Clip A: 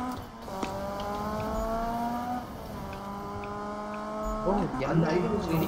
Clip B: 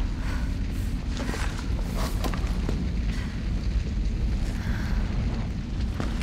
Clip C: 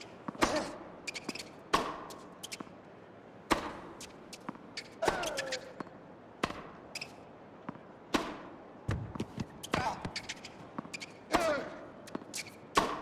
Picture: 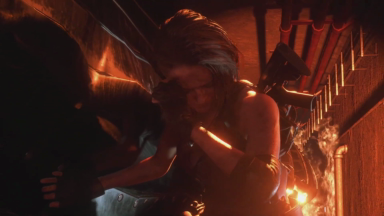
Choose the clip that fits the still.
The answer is B